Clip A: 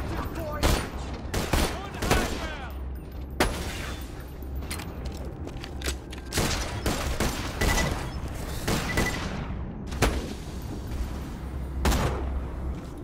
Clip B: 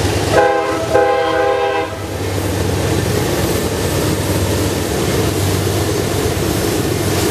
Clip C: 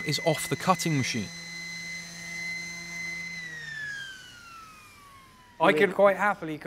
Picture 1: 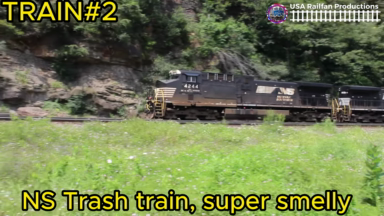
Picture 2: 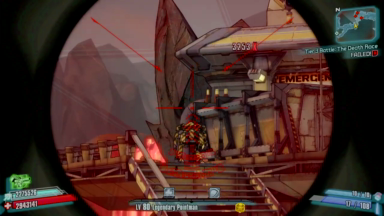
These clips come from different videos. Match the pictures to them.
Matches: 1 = B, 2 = A